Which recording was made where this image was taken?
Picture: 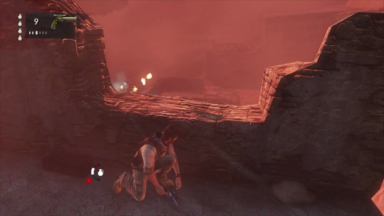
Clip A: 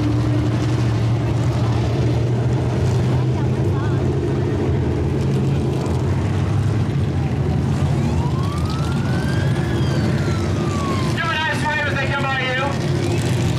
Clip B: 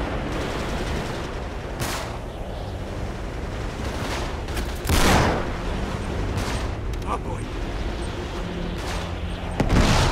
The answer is B